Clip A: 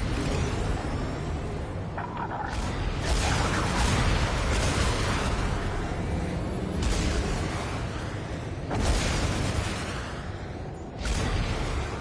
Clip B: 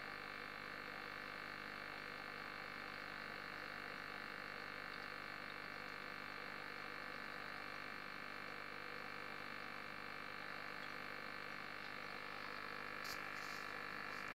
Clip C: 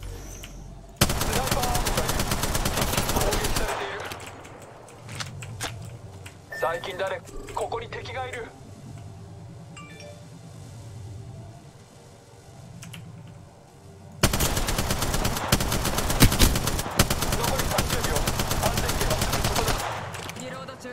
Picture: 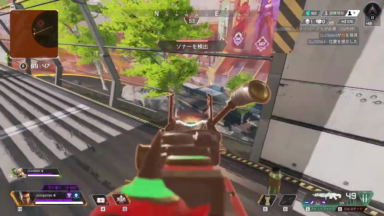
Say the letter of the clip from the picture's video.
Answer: C